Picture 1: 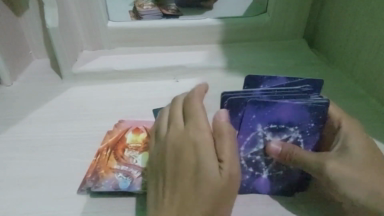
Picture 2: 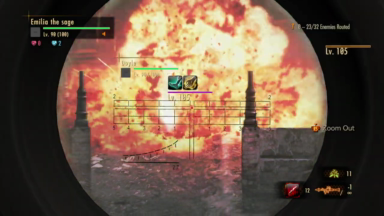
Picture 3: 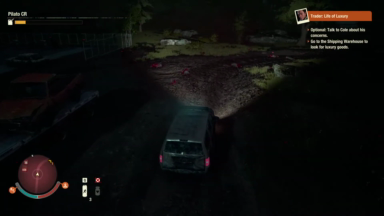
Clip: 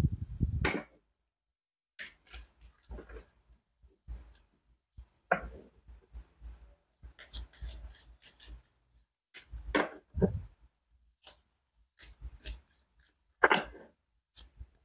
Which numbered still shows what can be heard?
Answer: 1